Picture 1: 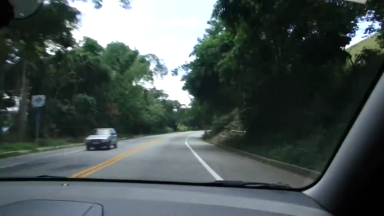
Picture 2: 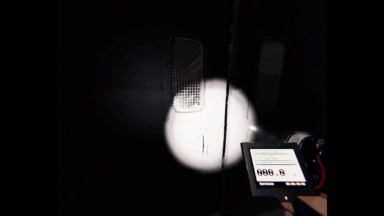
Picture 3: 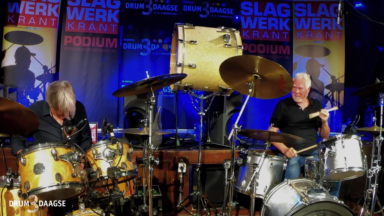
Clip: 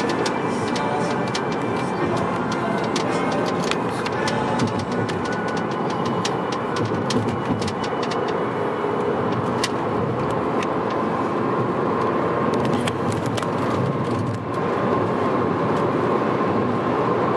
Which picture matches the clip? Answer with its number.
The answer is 1